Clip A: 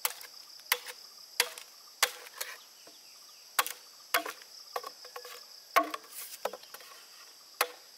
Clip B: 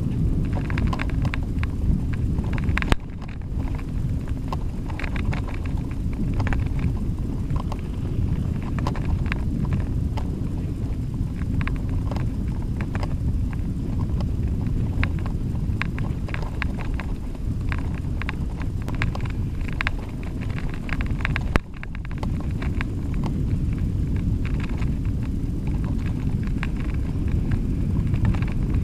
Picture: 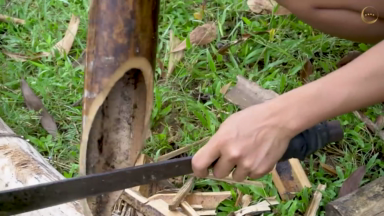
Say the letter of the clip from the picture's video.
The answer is A